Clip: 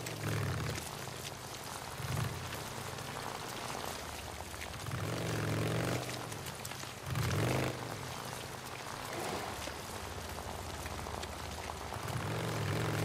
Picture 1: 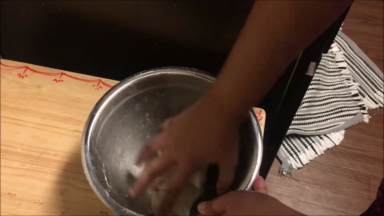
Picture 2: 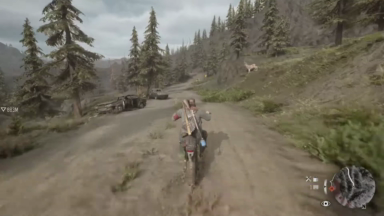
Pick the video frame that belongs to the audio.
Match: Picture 2